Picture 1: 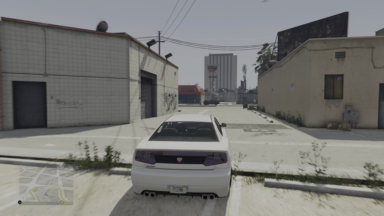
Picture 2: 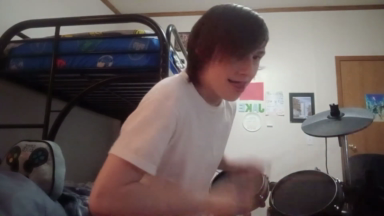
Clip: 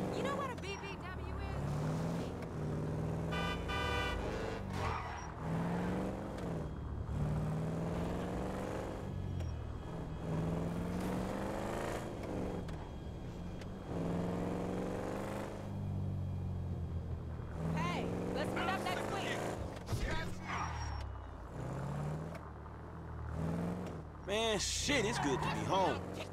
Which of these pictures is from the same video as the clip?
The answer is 1